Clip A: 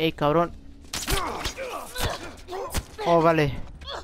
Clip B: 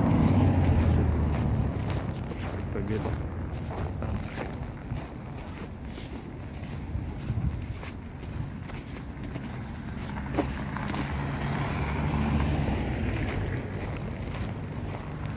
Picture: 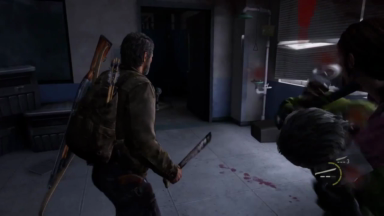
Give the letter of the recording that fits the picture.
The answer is A